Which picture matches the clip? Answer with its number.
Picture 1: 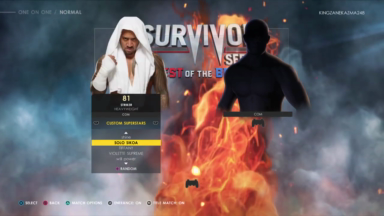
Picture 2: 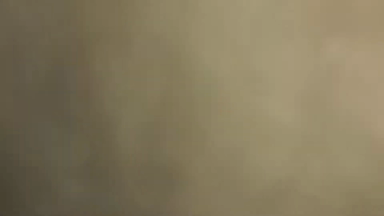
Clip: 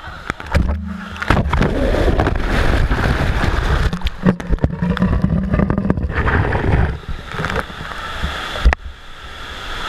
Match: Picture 2